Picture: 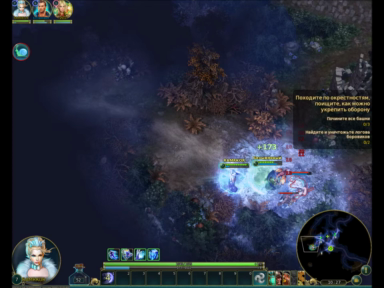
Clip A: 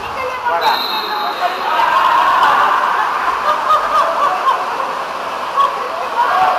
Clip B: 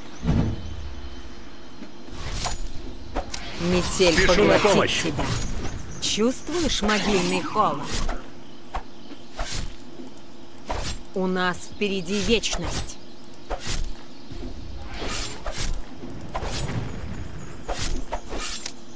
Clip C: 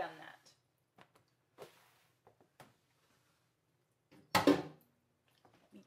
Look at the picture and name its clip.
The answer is B